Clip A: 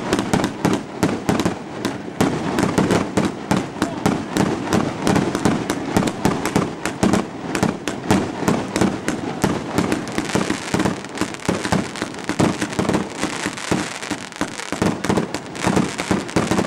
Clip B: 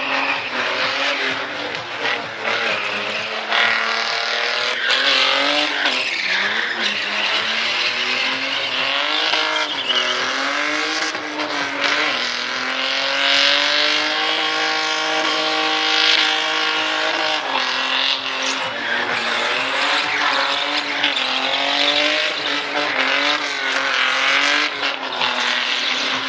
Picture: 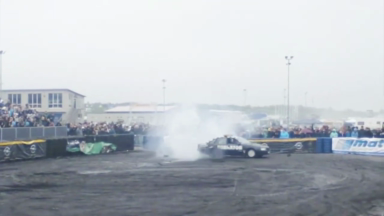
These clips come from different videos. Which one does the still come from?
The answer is B